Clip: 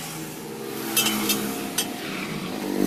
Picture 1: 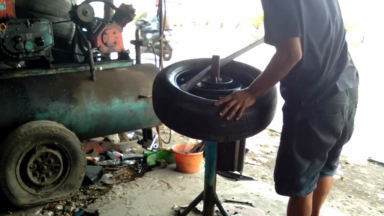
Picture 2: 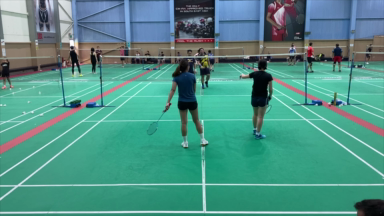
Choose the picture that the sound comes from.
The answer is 1